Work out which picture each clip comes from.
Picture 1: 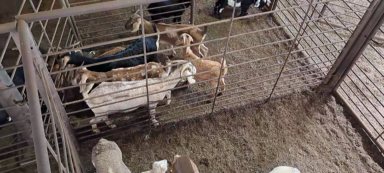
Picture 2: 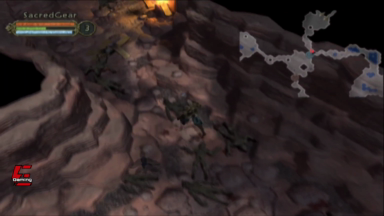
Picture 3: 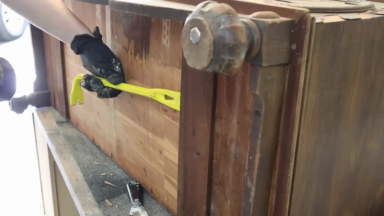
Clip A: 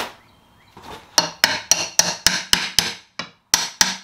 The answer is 3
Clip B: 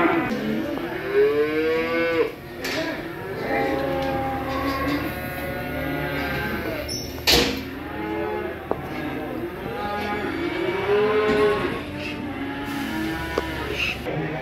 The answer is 1